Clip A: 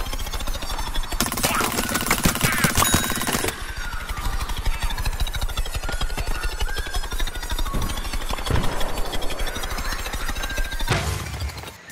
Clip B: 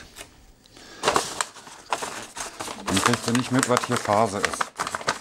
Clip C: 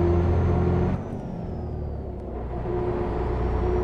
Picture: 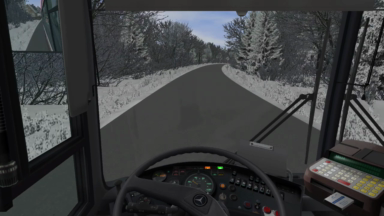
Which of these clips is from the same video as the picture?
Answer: C